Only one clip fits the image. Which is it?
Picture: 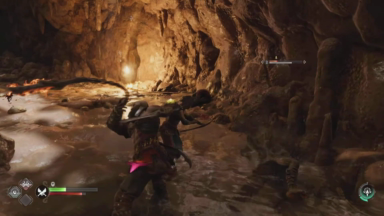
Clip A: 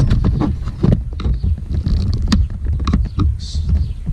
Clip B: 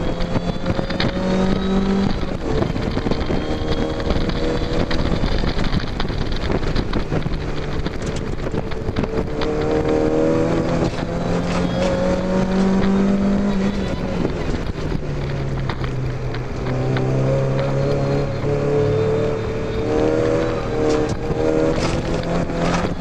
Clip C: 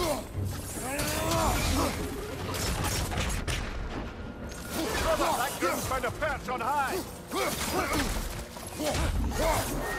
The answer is C